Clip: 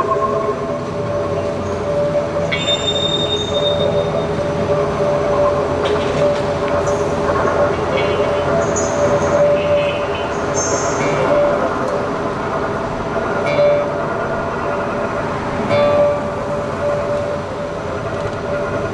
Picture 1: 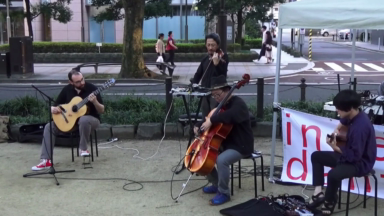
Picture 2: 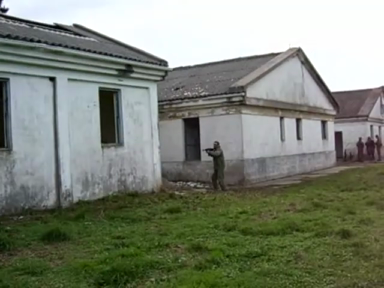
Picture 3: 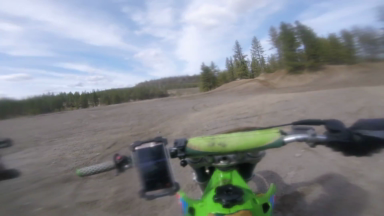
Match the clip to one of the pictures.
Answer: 1